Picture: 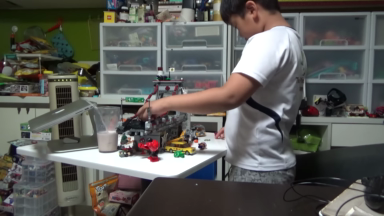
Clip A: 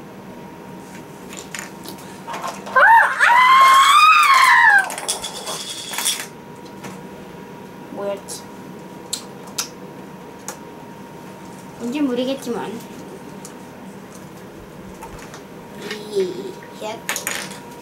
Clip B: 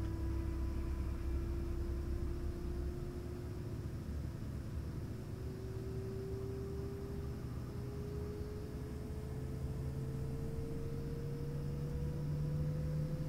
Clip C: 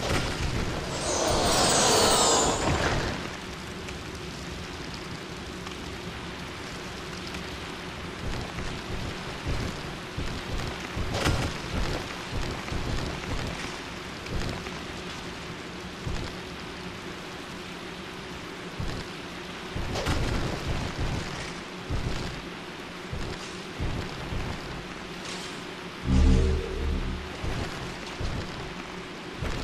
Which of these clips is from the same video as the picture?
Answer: A